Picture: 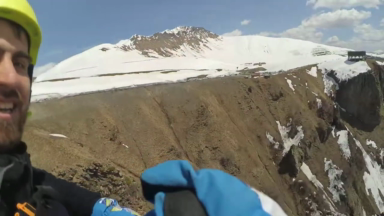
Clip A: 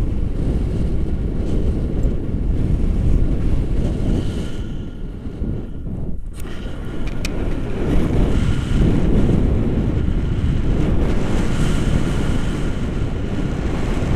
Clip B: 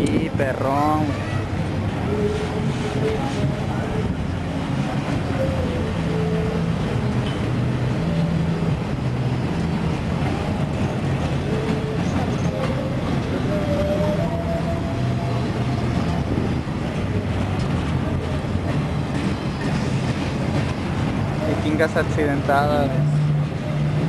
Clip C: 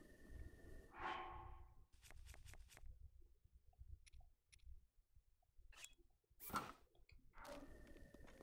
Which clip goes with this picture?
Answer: A